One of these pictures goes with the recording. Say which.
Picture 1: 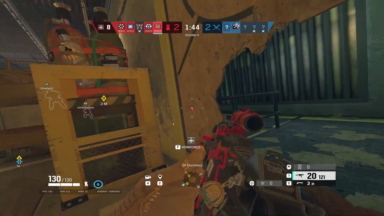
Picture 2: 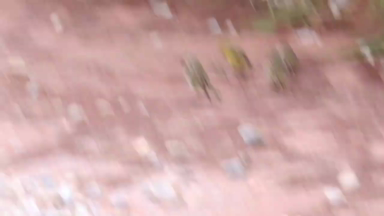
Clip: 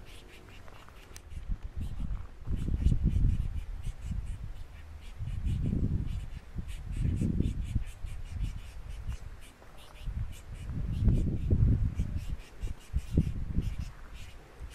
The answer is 2